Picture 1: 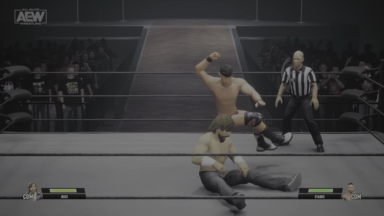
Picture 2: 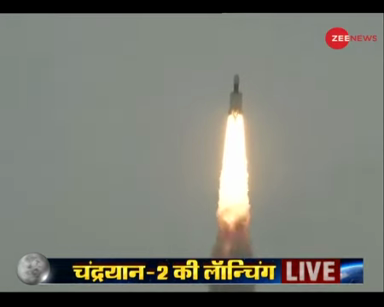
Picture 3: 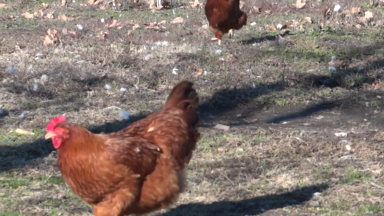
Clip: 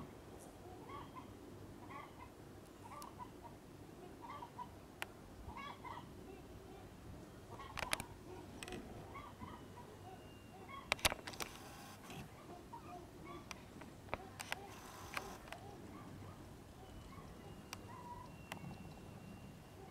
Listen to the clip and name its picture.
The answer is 3